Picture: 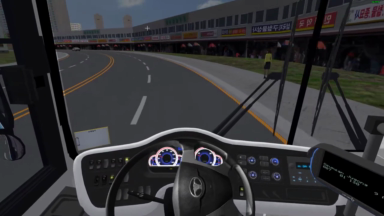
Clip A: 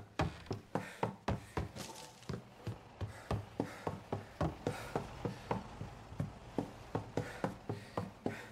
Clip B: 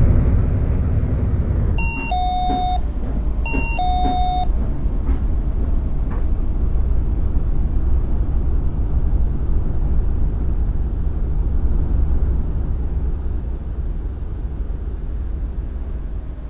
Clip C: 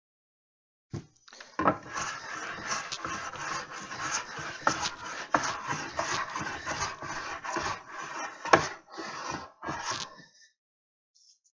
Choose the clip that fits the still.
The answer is B